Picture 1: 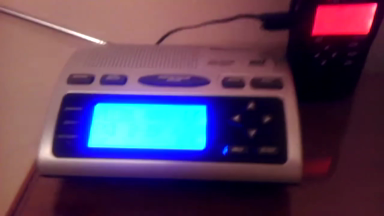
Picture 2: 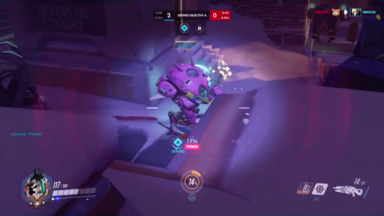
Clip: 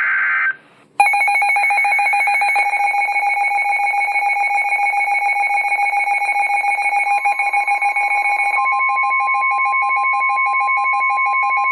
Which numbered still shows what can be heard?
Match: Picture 1